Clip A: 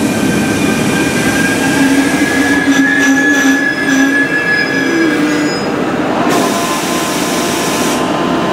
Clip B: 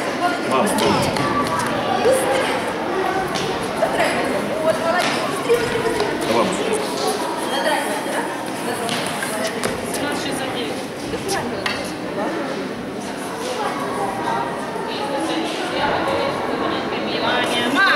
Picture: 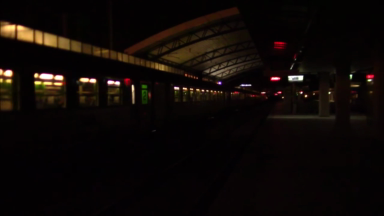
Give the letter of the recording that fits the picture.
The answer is A